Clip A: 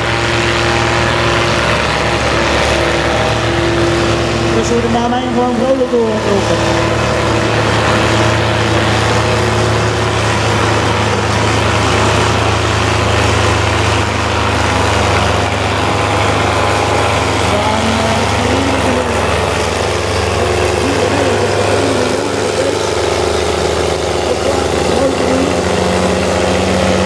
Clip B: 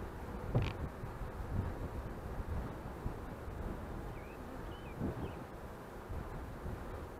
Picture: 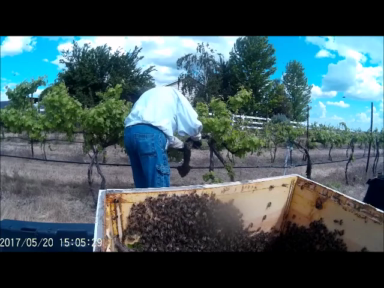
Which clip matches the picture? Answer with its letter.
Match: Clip B